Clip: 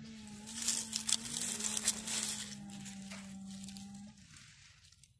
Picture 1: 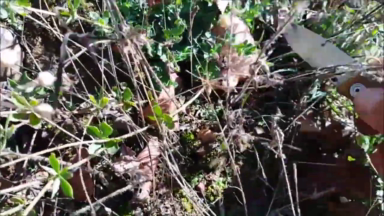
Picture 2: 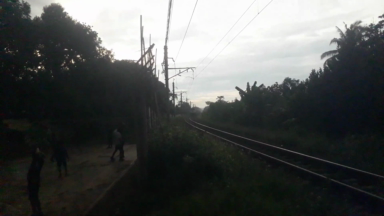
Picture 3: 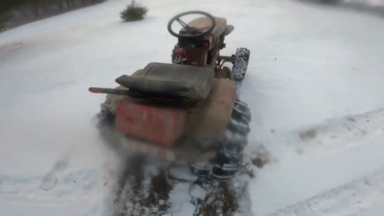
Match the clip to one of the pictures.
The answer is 1